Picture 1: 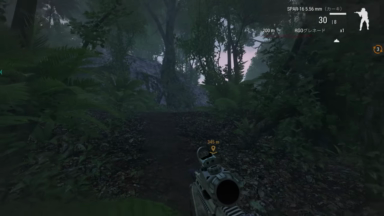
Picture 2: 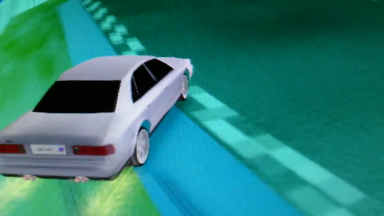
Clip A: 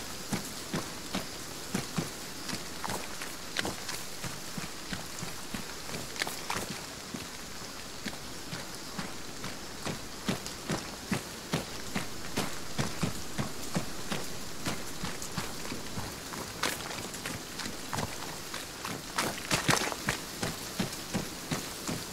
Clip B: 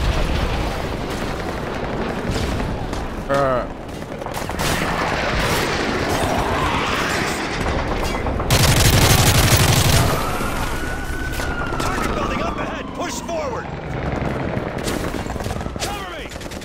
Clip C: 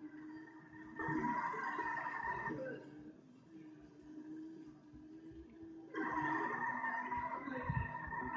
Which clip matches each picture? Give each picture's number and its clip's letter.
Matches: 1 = A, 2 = C